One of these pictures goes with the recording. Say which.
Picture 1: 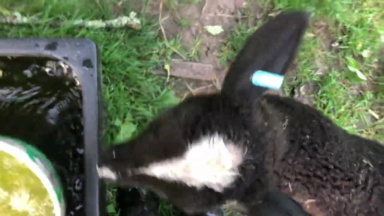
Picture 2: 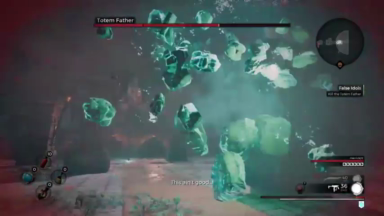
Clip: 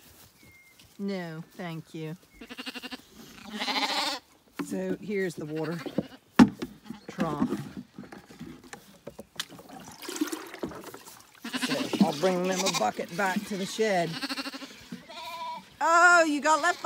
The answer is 1